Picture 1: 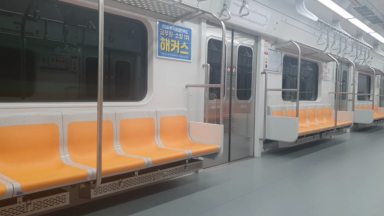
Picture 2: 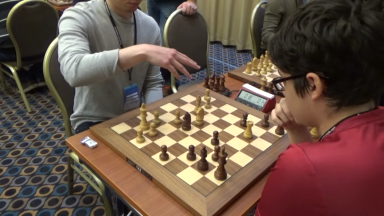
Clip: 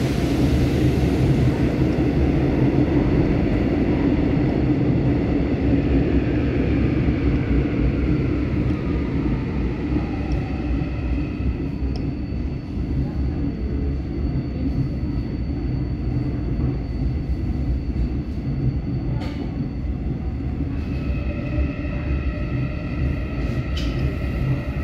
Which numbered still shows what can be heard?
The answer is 1